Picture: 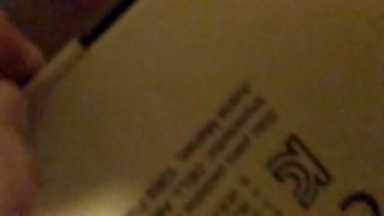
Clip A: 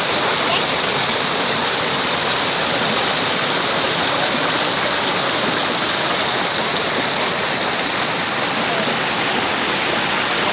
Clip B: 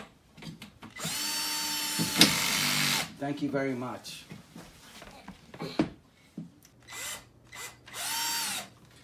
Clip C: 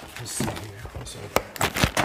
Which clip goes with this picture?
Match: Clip C